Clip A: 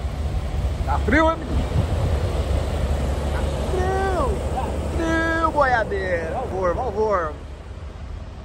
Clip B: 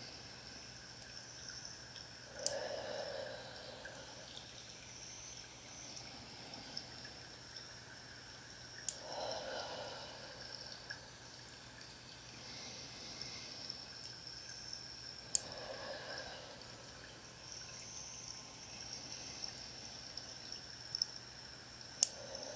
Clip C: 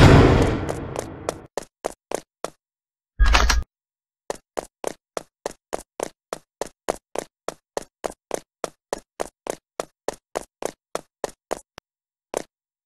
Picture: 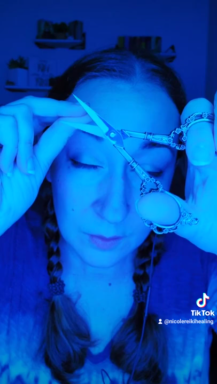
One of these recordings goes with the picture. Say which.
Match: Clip B